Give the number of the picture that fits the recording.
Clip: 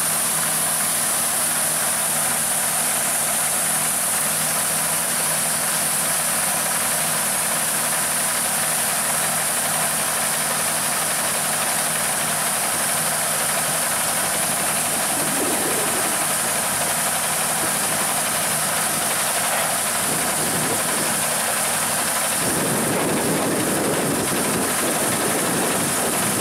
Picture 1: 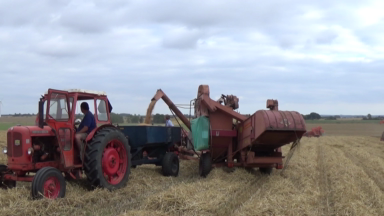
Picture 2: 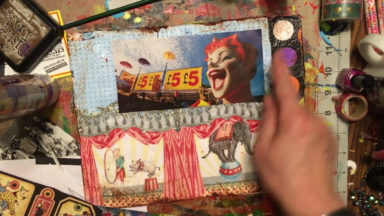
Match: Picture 1